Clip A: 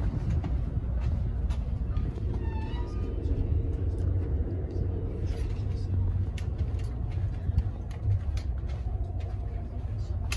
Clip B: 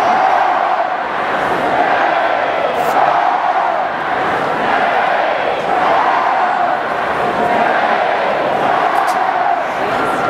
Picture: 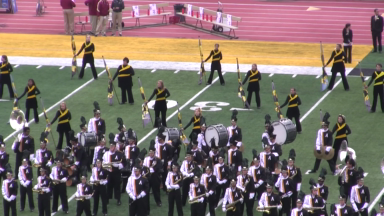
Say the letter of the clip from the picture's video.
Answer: B